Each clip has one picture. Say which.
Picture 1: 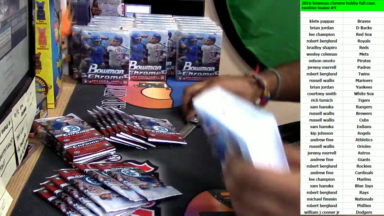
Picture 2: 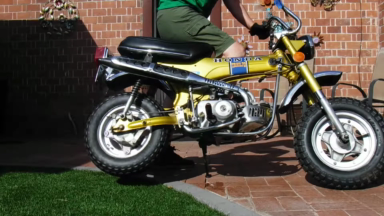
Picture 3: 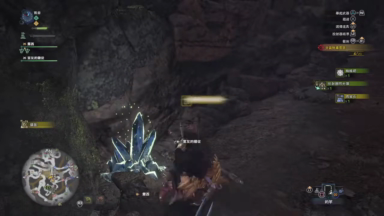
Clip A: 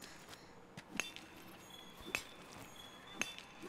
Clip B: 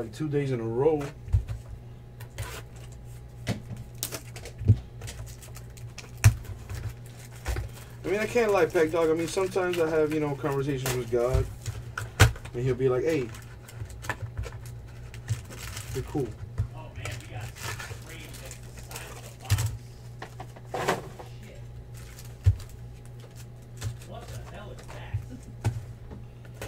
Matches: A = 3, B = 1